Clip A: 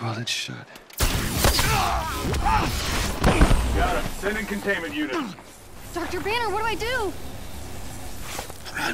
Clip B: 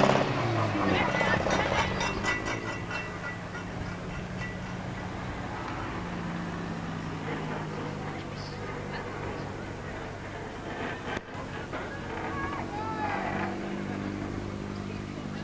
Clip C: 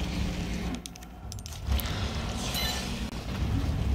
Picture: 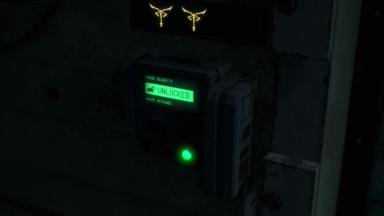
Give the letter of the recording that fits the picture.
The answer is C